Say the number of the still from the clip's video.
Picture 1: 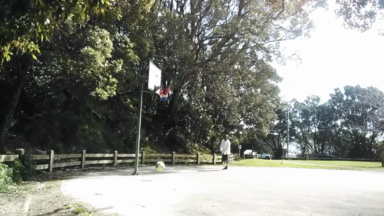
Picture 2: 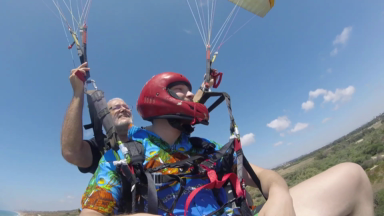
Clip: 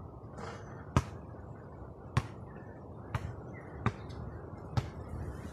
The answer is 1